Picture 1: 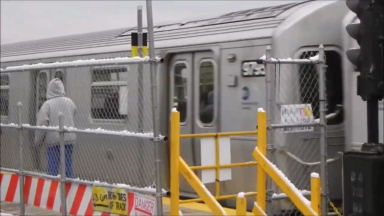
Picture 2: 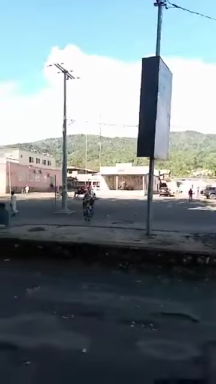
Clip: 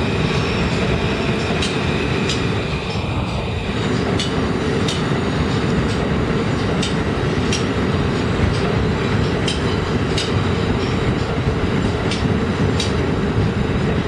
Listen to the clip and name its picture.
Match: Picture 1